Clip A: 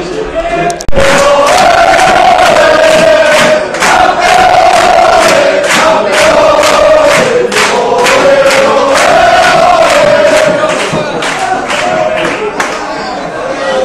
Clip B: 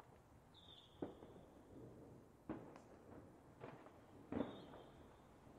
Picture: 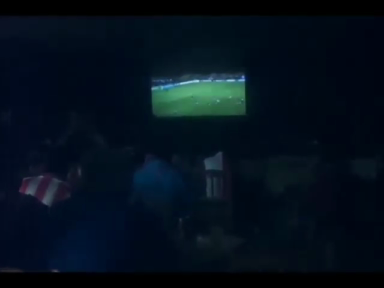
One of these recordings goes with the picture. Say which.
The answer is A